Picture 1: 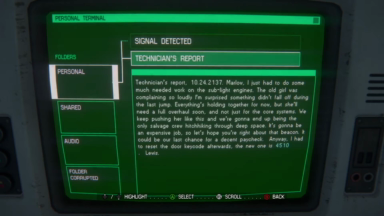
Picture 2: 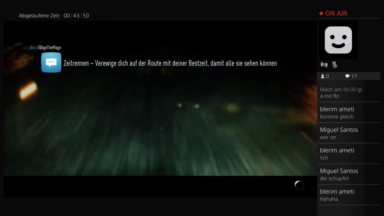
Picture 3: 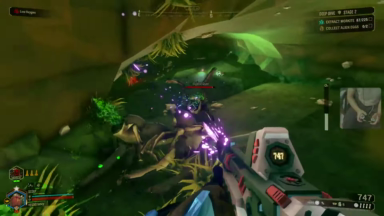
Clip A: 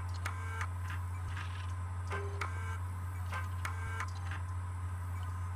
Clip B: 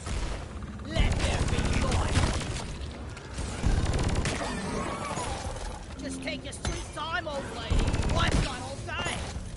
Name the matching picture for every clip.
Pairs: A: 1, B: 3